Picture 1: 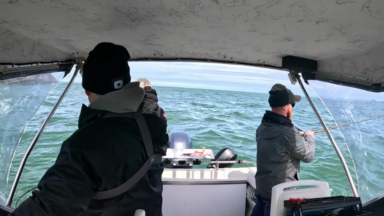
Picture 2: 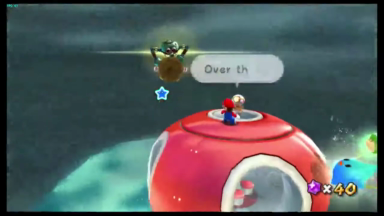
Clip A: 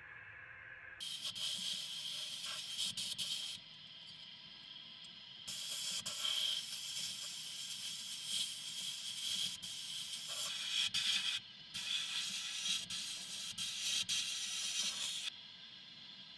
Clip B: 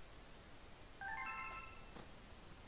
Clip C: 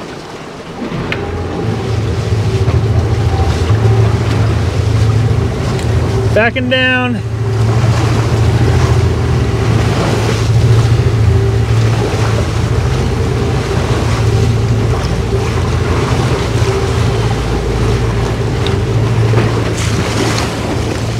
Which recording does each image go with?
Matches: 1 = C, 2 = B